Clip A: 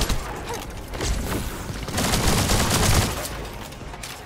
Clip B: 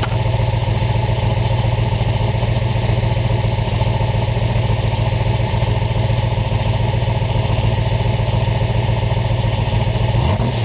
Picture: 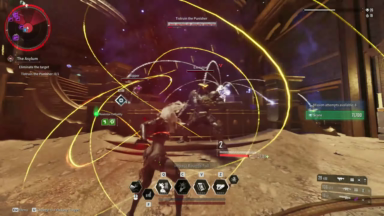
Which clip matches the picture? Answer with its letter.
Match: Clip A